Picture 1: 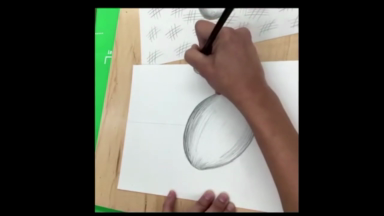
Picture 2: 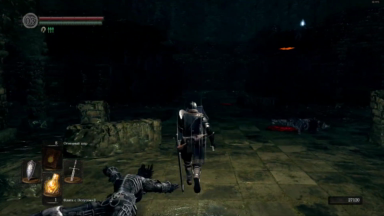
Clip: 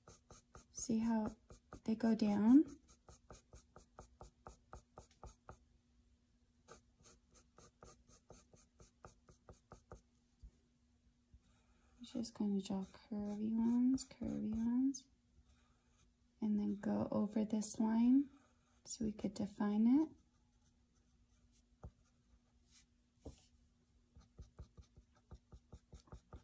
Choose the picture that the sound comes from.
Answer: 1